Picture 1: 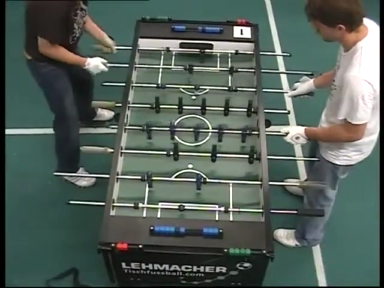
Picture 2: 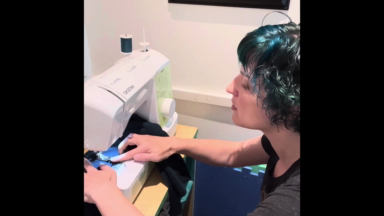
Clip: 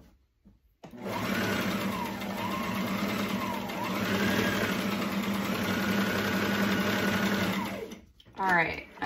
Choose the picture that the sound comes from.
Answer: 2